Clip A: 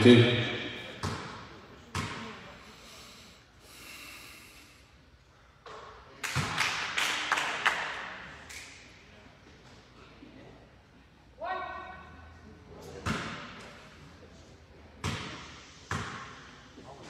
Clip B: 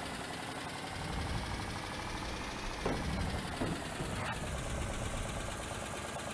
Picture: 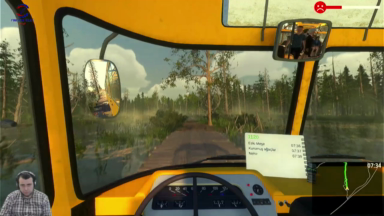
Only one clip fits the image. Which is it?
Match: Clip B